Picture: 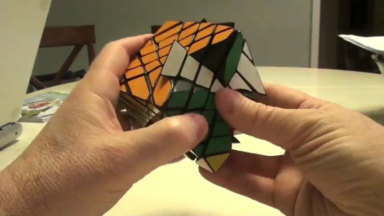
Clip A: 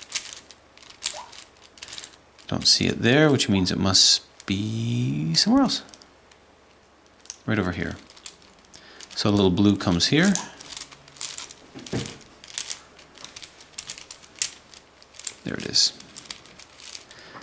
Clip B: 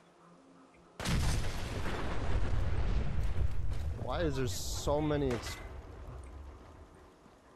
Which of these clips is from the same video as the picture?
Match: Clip A